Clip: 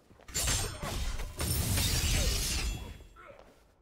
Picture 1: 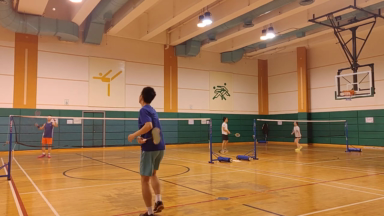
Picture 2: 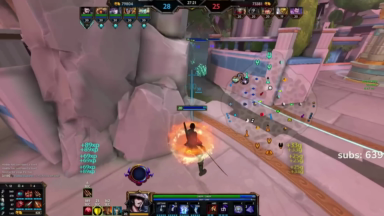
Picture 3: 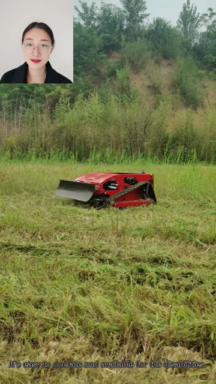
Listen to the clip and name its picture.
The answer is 2